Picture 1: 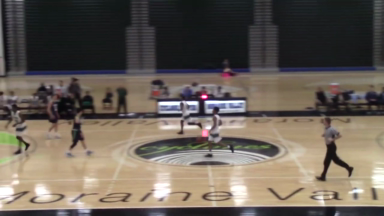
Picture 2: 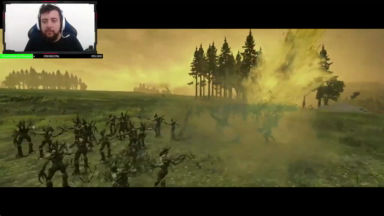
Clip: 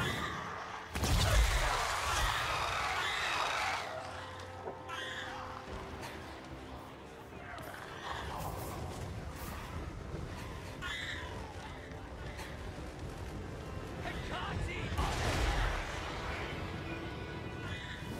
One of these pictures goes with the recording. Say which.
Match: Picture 2